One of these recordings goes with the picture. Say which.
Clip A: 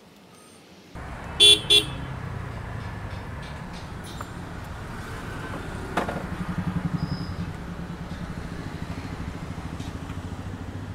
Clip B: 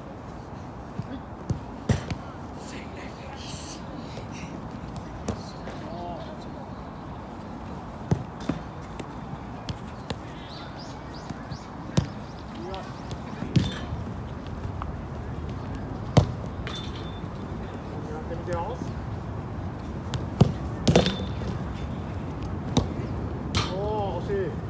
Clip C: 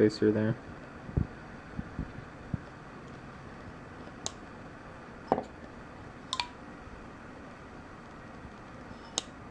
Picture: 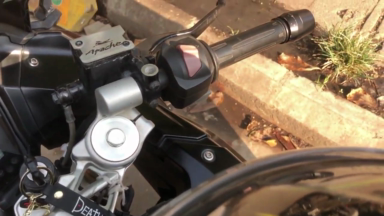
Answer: A